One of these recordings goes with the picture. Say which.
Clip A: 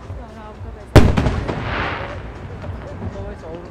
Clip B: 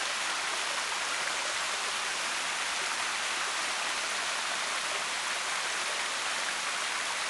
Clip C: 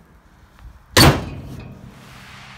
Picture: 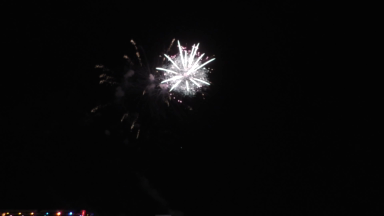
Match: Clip A